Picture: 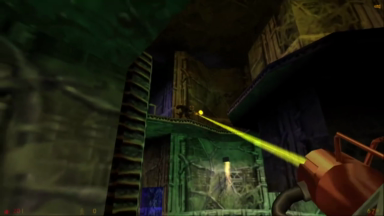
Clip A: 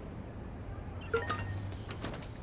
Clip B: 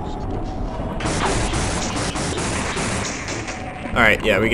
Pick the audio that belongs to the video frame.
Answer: B